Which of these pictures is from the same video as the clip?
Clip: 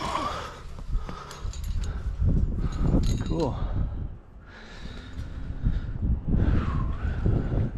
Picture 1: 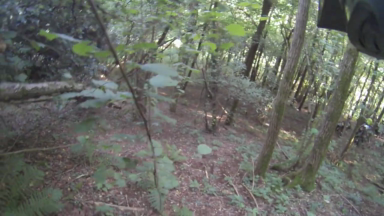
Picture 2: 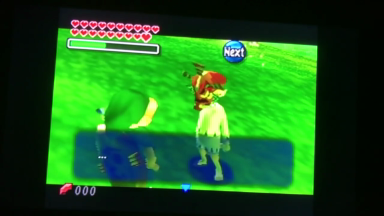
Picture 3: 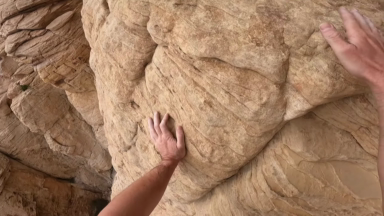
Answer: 3